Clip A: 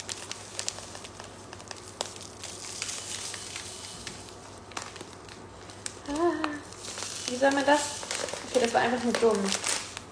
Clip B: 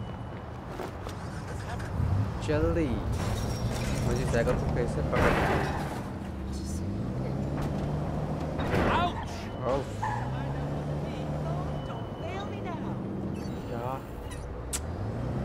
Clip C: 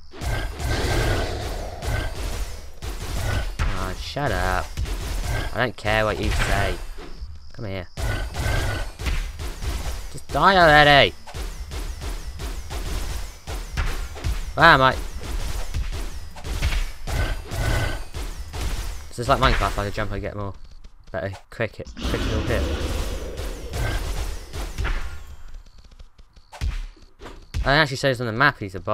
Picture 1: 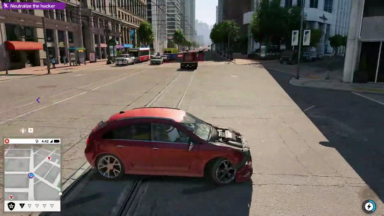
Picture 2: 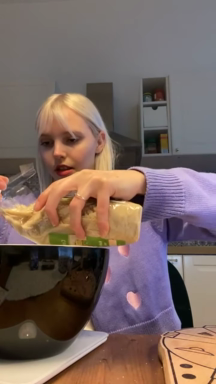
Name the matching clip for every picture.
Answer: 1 B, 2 A